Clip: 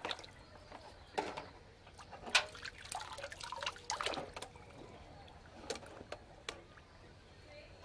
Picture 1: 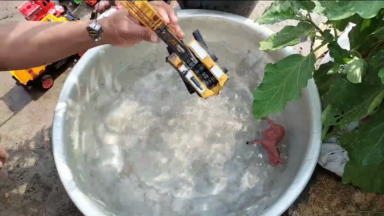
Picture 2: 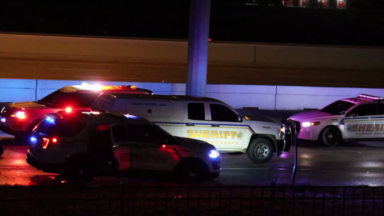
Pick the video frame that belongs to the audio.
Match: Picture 1